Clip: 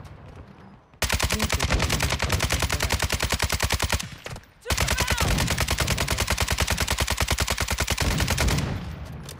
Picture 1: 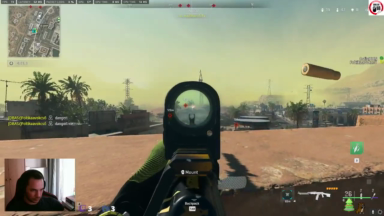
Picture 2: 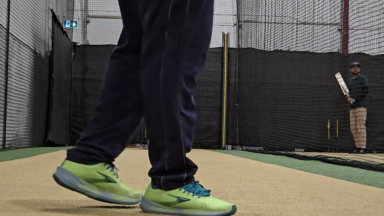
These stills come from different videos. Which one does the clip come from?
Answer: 1